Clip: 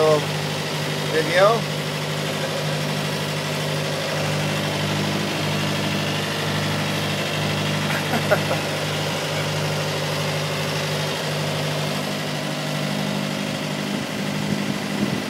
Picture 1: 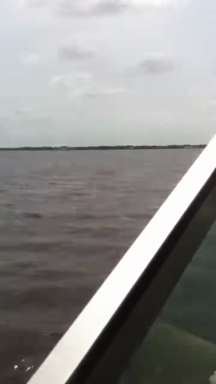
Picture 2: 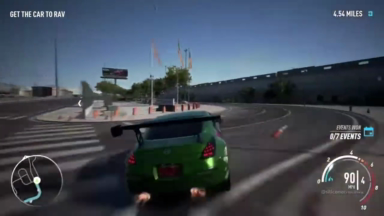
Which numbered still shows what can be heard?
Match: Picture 1